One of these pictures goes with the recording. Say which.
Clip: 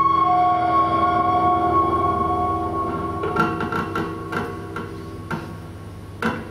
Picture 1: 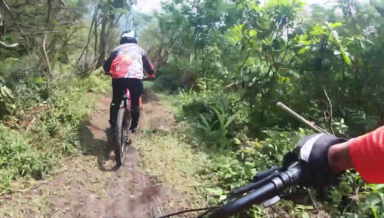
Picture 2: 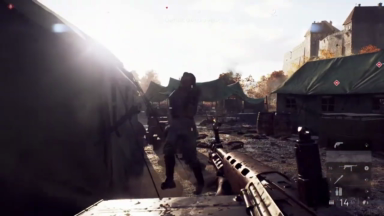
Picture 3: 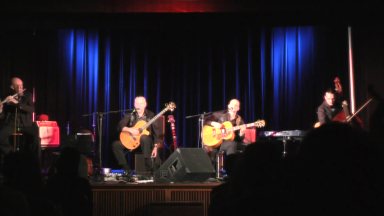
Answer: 3